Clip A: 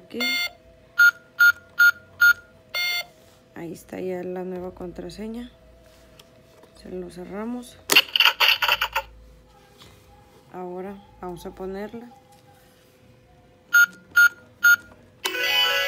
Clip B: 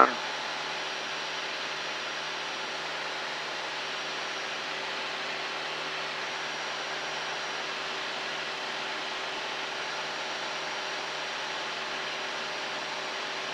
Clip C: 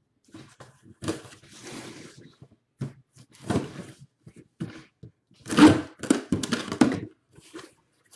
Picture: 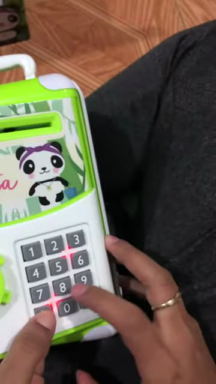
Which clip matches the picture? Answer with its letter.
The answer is A